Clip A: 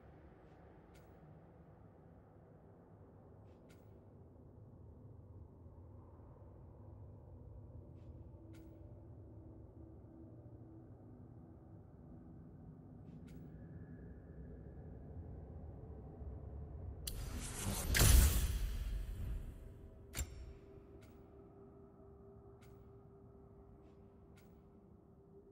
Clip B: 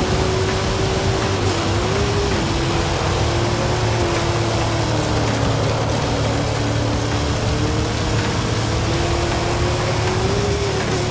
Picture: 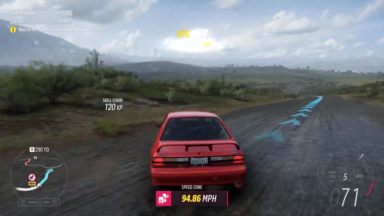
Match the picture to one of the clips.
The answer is B